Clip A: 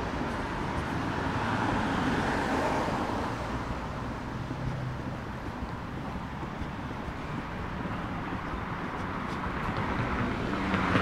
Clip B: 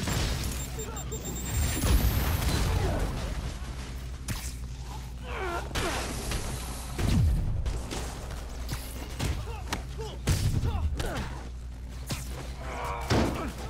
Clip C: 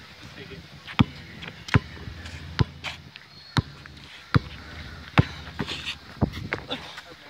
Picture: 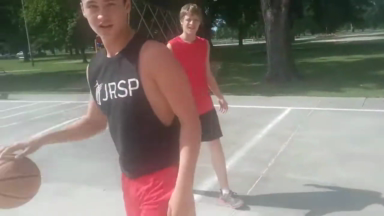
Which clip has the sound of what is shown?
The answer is C